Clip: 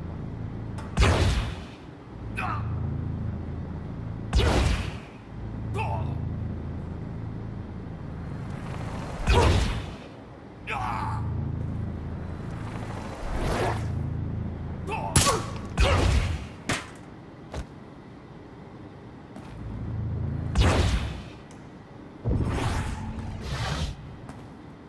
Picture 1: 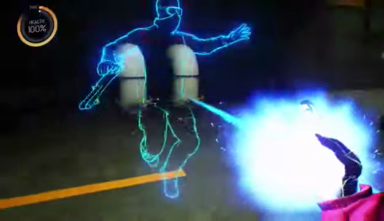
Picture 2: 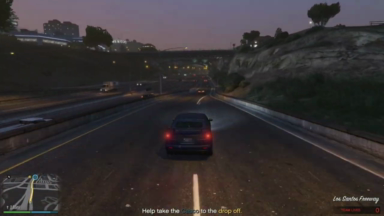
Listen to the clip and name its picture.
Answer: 1